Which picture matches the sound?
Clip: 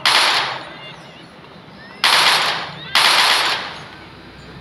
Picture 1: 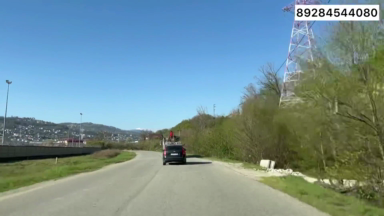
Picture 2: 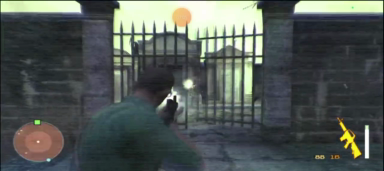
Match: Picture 2